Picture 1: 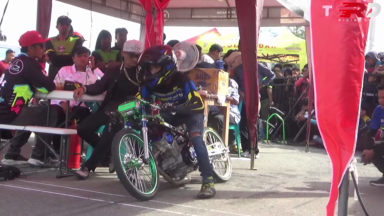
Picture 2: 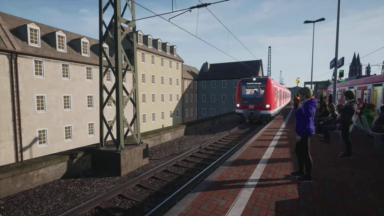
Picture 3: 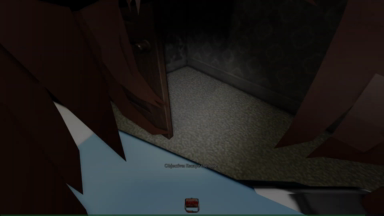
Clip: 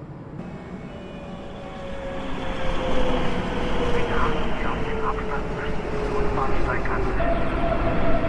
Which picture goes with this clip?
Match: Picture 2